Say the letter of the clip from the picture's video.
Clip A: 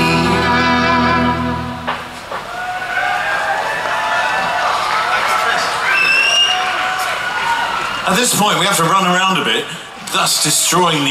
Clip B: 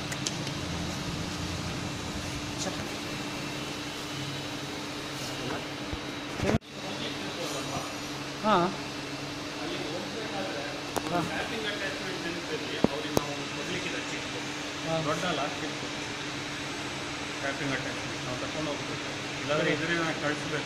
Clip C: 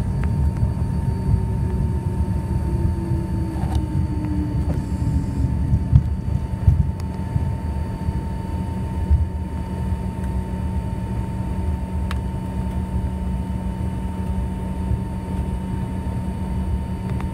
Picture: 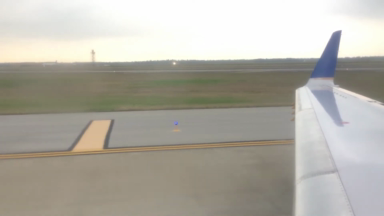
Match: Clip C